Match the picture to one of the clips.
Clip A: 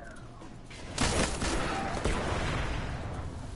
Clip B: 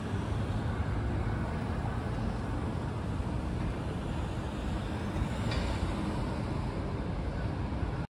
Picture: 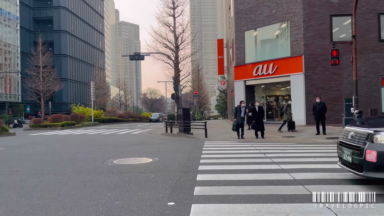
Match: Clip B